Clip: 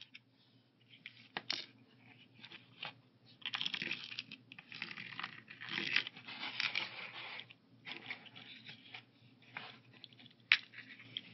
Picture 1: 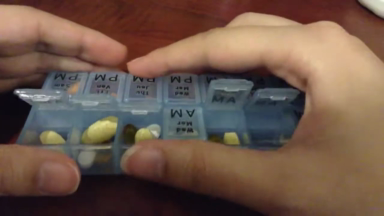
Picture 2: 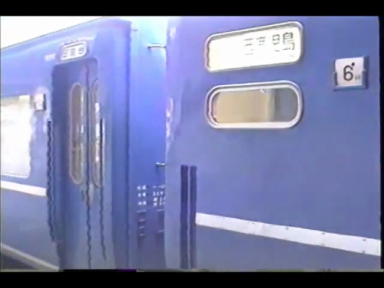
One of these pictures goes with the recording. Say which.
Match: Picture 1